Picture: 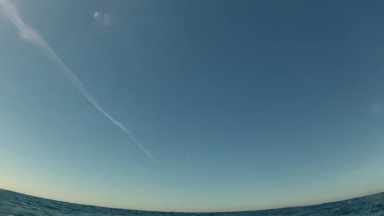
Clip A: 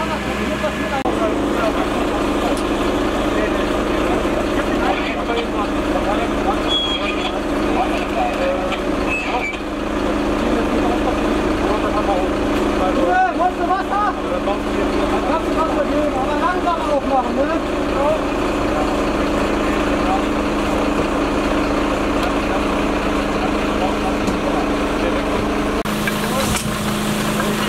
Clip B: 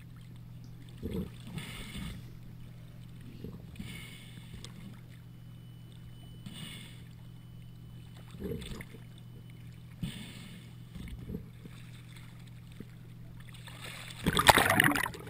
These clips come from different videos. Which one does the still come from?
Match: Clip B